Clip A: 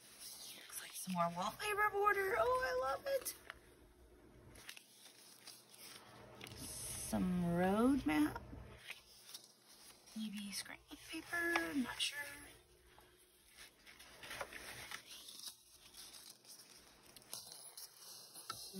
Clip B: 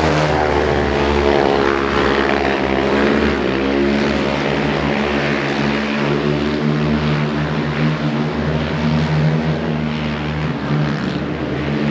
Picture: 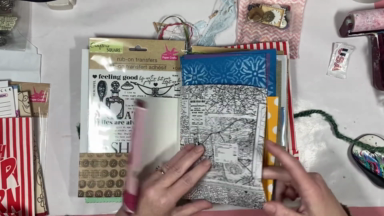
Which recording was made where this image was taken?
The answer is A